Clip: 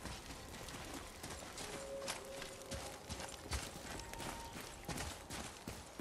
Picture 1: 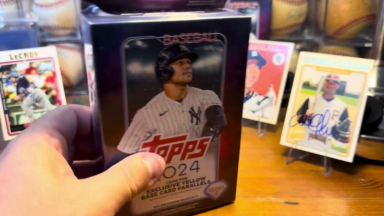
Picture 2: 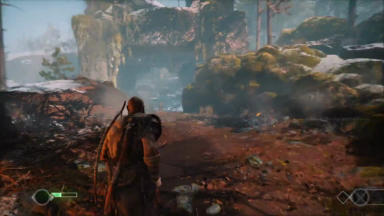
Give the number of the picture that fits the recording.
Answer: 2